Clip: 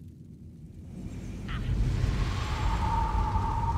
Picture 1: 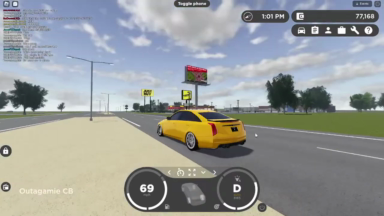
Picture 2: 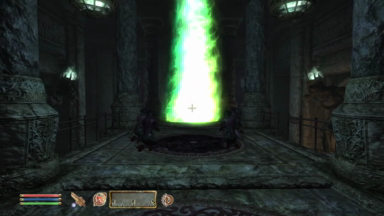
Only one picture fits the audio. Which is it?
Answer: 2